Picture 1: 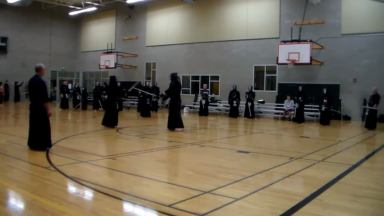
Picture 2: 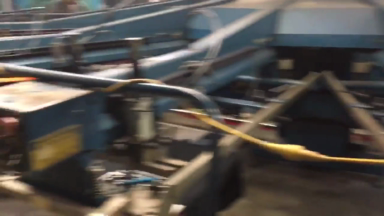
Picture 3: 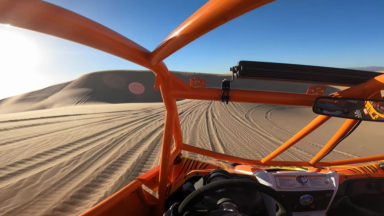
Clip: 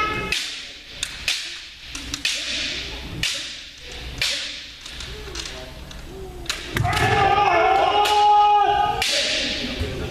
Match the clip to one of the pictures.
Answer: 1